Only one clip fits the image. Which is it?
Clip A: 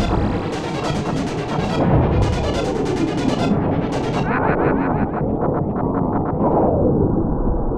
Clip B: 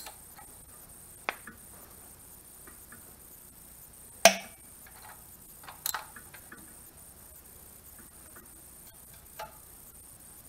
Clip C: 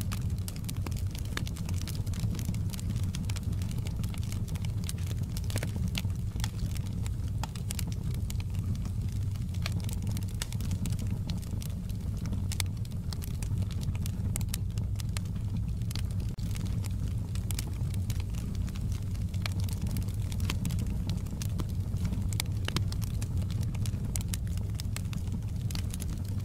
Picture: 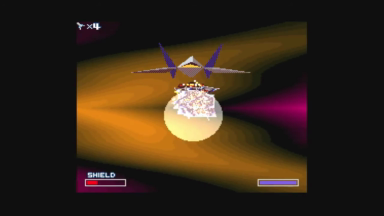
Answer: A